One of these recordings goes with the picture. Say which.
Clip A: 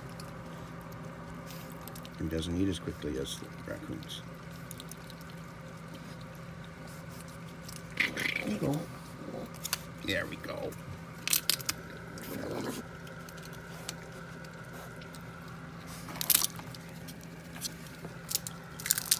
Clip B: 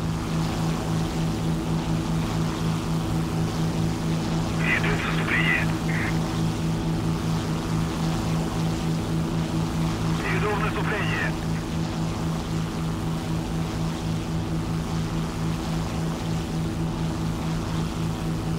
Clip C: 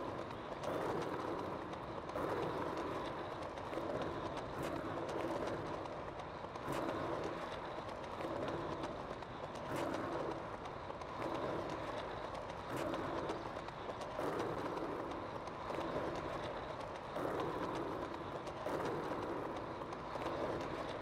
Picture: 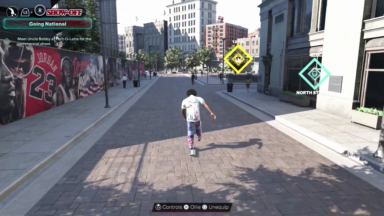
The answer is C